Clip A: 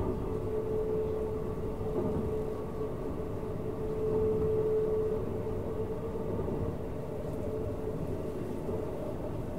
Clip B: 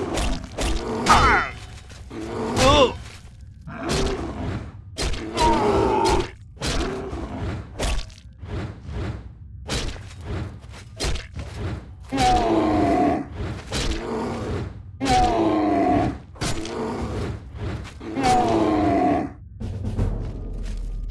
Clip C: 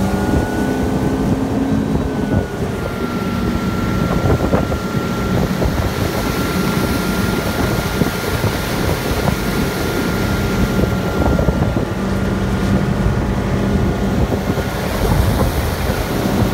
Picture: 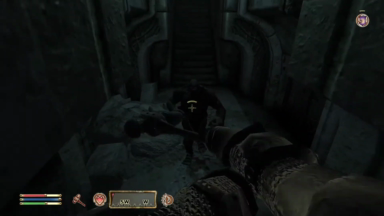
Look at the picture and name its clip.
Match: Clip B